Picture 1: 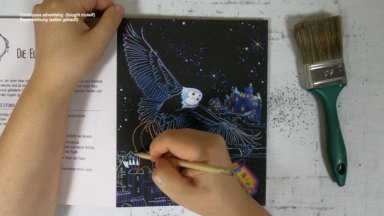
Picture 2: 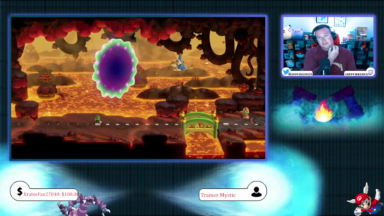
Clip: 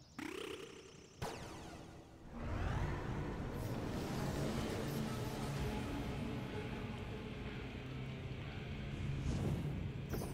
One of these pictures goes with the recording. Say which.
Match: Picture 2